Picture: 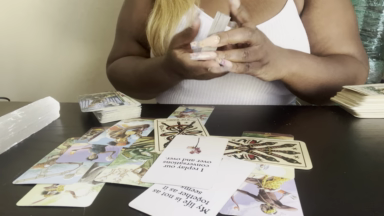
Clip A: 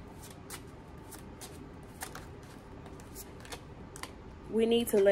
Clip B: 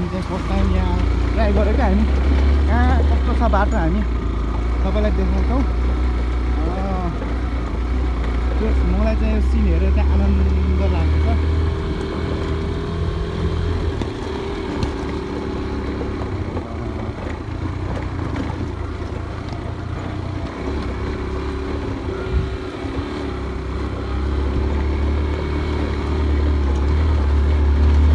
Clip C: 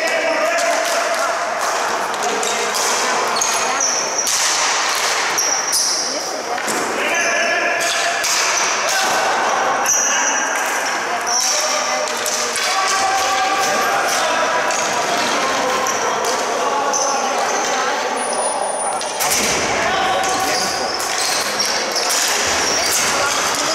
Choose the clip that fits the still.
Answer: A